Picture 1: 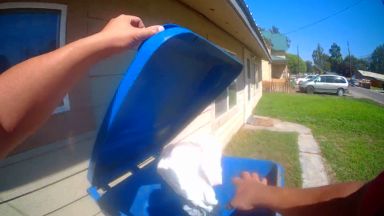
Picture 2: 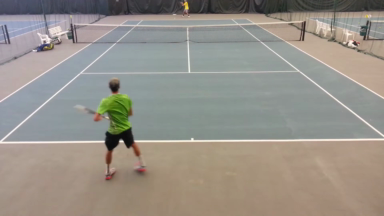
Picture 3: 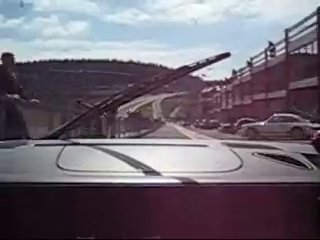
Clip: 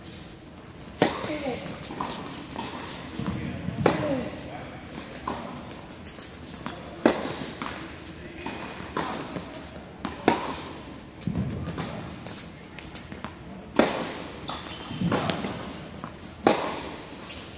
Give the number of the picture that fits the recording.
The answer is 2